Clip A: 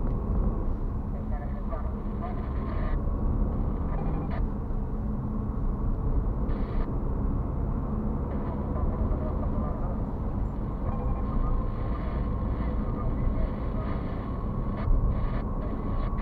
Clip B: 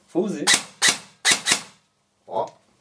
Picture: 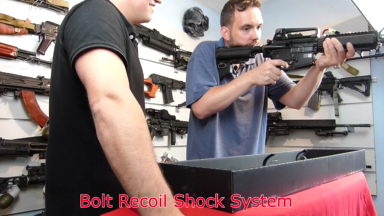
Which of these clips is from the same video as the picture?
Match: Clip B